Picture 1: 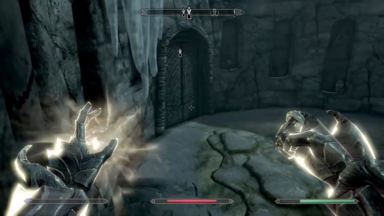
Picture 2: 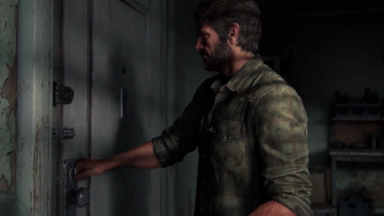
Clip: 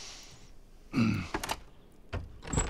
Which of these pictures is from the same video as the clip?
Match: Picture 2